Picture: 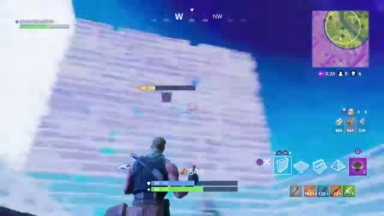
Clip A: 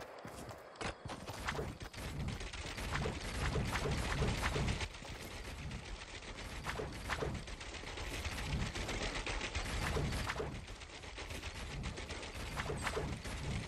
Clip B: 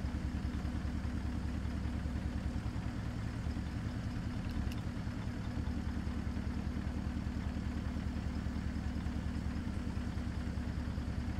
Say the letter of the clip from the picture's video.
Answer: A